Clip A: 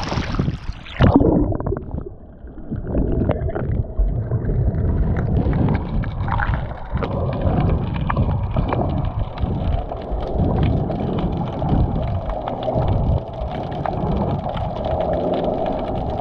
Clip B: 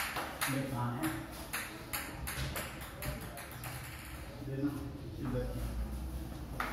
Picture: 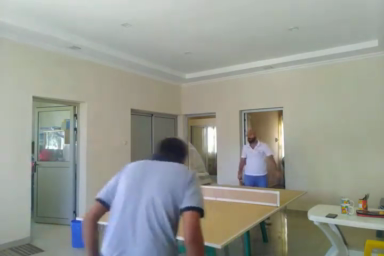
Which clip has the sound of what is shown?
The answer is B